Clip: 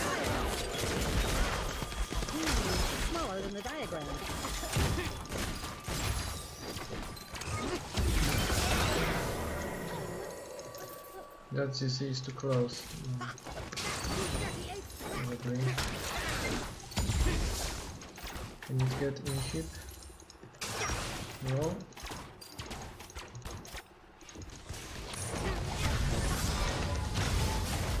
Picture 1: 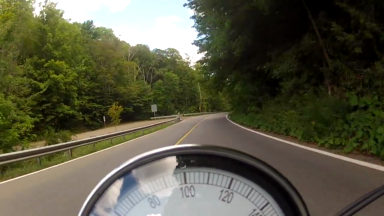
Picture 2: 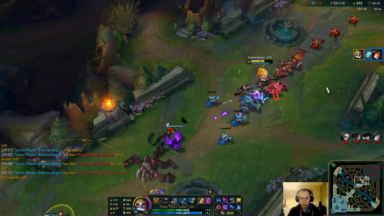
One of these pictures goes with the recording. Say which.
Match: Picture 2